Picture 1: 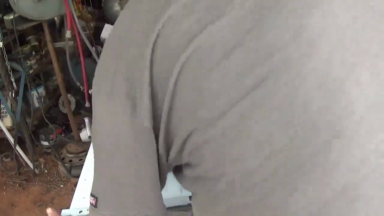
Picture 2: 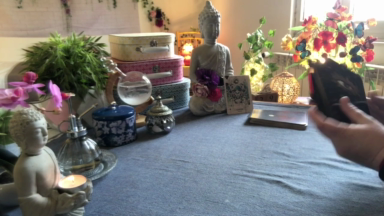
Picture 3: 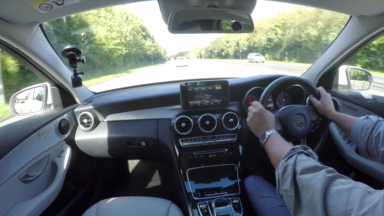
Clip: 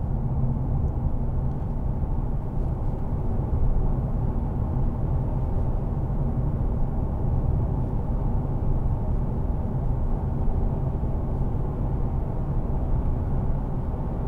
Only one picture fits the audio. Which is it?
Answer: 3